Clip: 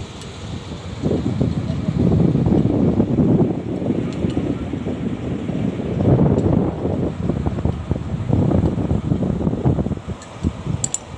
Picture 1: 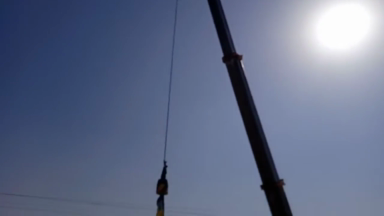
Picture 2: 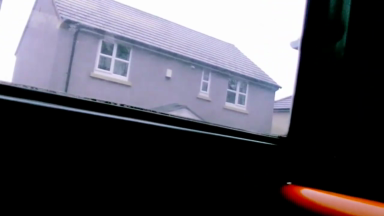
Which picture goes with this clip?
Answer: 1